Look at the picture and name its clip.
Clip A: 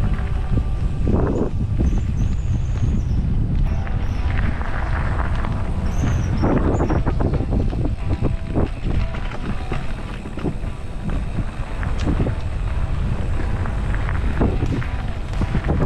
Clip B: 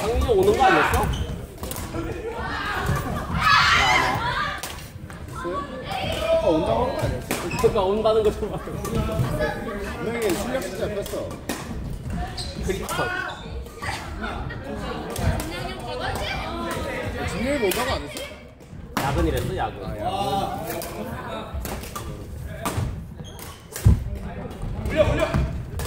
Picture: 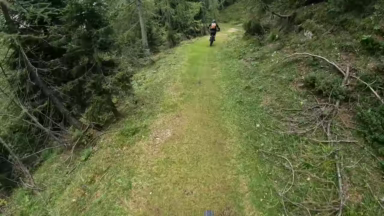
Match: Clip A